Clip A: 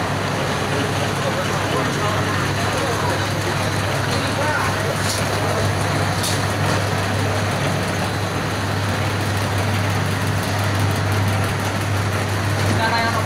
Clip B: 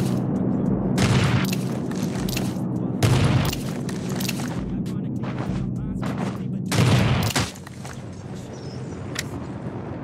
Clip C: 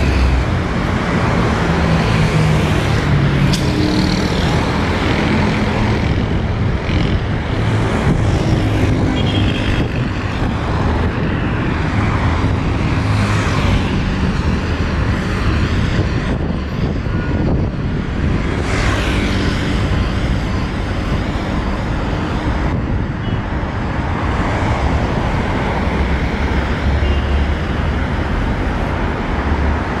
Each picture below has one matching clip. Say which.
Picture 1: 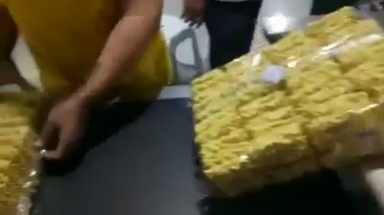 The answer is A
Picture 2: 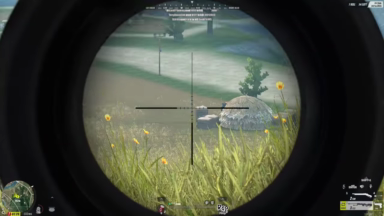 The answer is B